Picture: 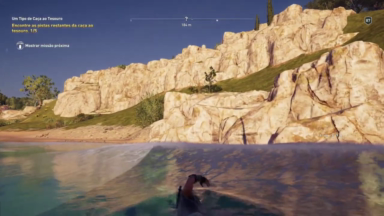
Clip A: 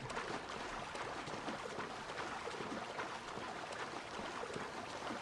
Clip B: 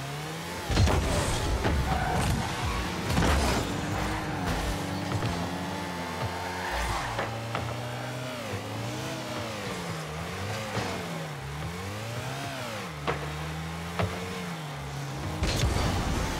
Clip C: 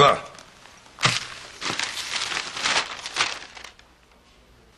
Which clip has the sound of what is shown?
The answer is A